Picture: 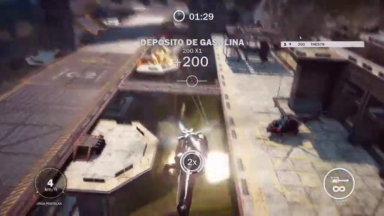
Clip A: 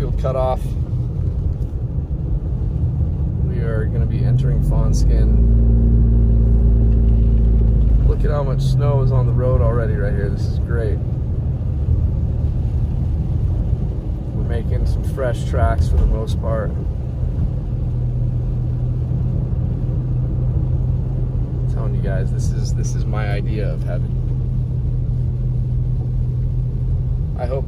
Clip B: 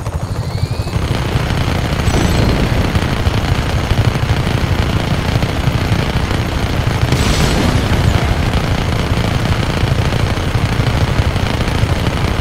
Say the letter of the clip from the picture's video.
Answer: B